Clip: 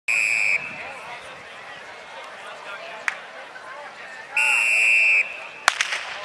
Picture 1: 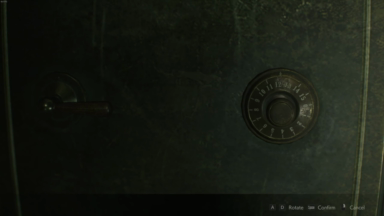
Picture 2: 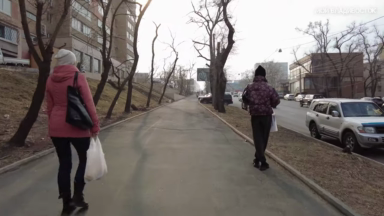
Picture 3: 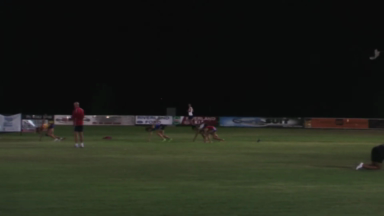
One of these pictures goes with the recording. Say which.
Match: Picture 3